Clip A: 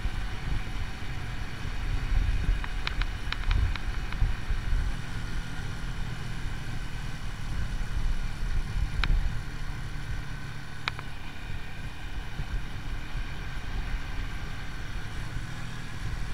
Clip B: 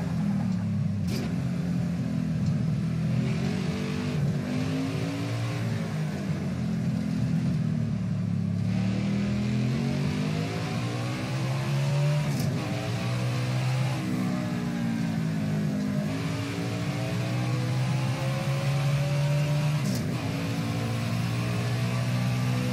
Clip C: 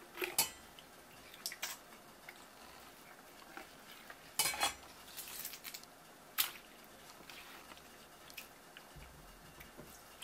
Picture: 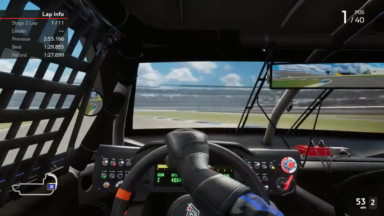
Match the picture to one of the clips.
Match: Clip B